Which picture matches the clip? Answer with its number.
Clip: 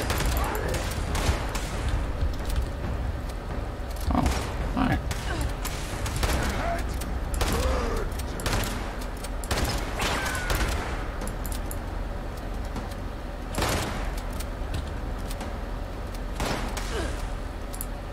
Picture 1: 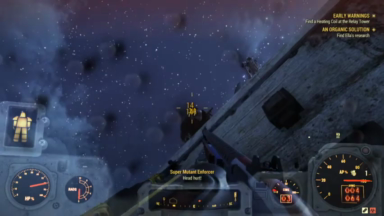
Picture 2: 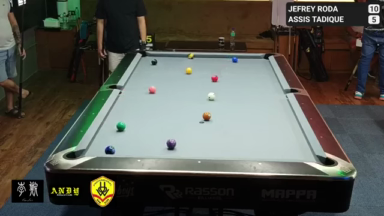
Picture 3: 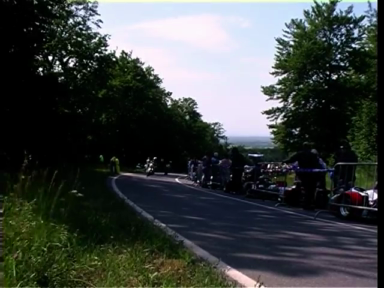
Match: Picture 1